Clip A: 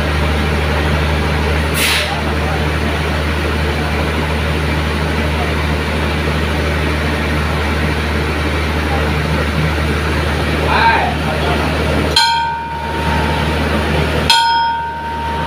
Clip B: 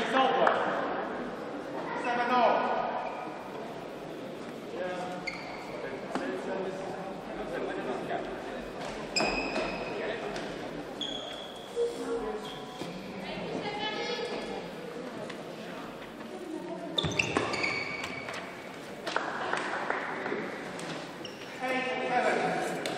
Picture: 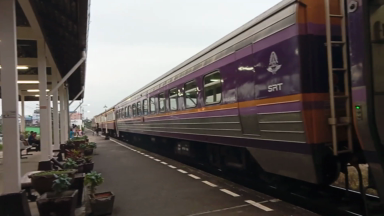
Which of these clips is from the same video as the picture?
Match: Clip A